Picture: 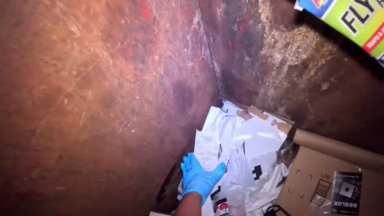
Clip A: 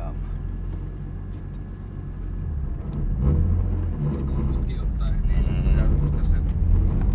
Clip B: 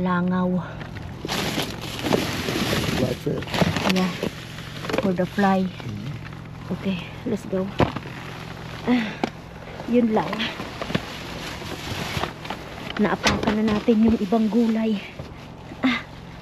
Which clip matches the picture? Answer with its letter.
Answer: B